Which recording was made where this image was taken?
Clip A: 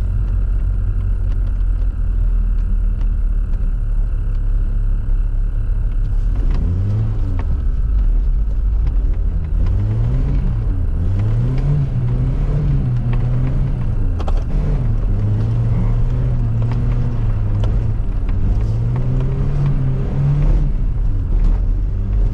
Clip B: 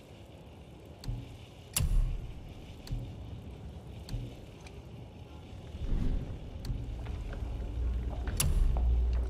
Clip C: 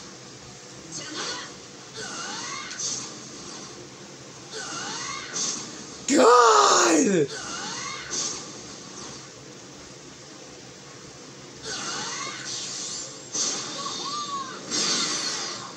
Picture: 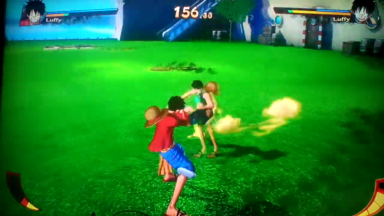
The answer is C